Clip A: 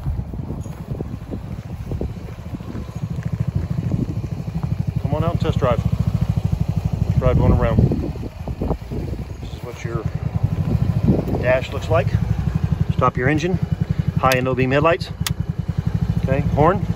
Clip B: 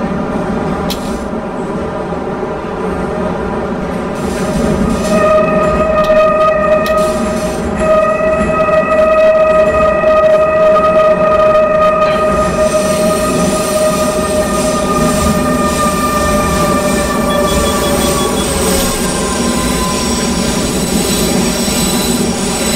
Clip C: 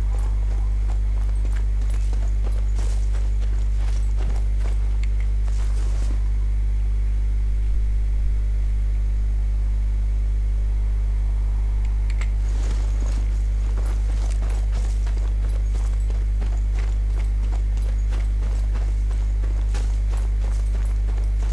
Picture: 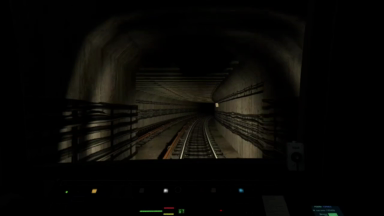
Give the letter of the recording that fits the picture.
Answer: B